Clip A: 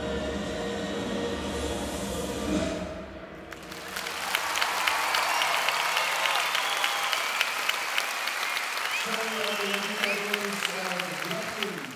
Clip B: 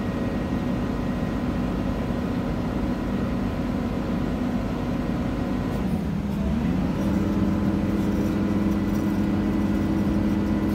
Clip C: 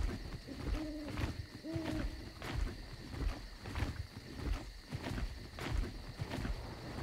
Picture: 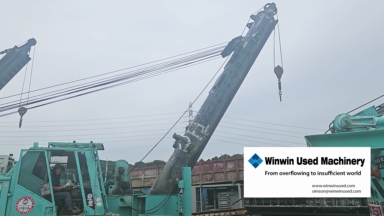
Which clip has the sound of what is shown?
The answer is B